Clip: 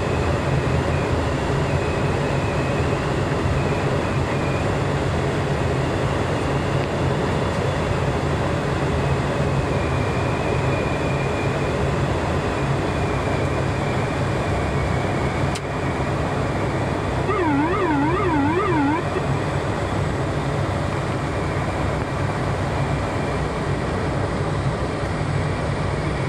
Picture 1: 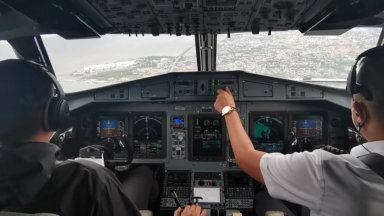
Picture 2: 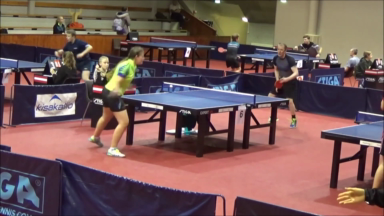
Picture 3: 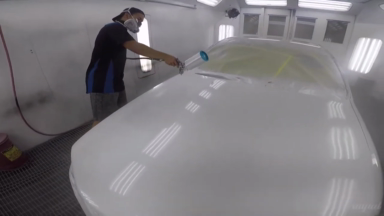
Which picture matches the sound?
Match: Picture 1